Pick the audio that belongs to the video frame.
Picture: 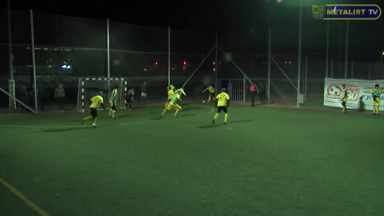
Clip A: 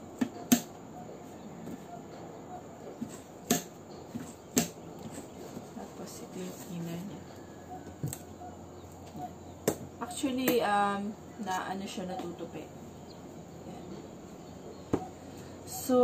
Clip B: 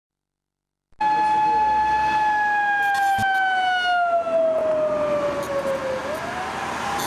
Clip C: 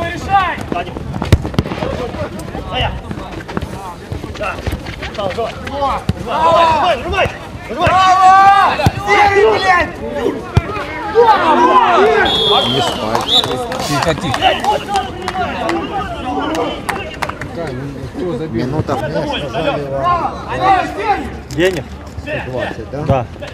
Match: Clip C